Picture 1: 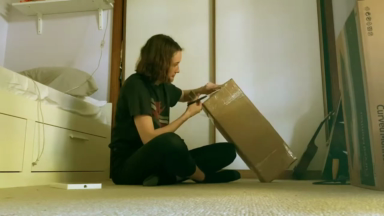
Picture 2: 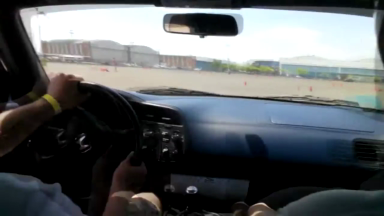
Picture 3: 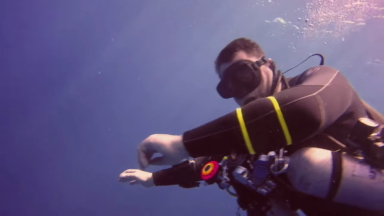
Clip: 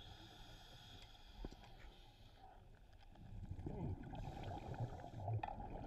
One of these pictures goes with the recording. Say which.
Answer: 3